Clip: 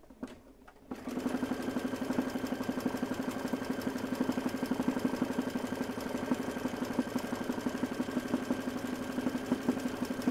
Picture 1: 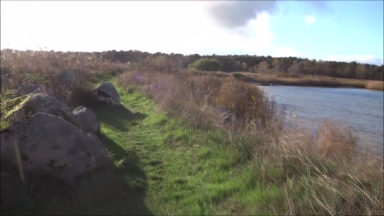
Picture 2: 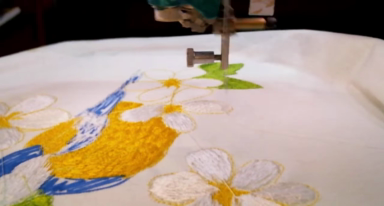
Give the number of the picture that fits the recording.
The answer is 2